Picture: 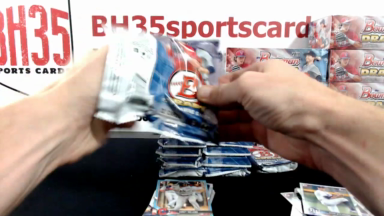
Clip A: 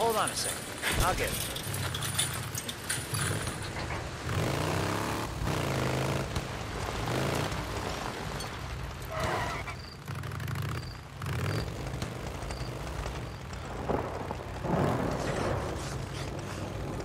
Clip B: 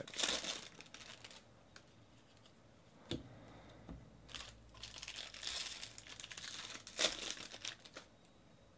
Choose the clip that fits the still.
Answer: B